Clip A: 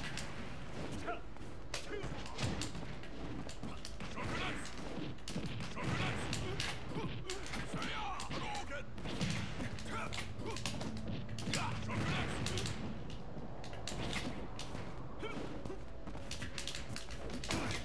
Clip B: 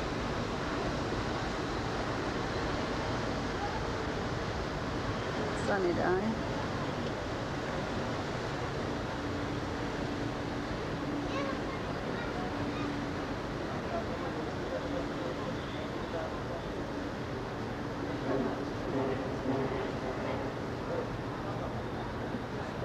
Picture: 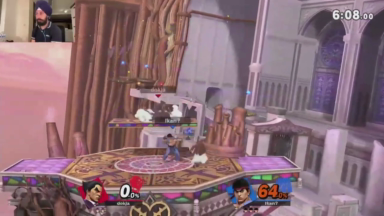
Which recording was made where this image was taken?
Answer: A